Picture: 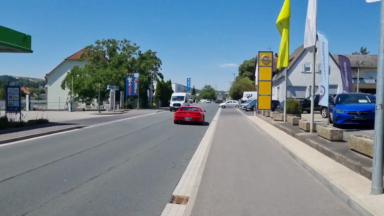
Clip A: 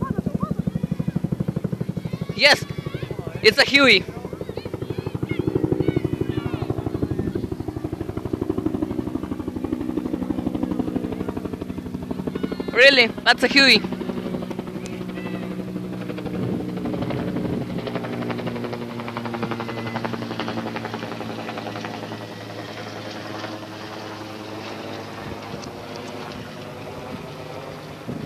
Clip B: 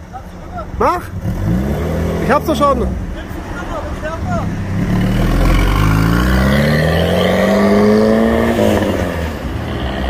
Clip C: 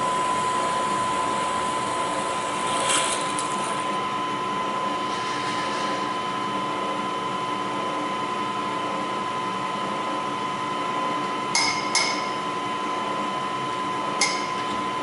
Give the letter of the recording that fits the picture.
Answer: B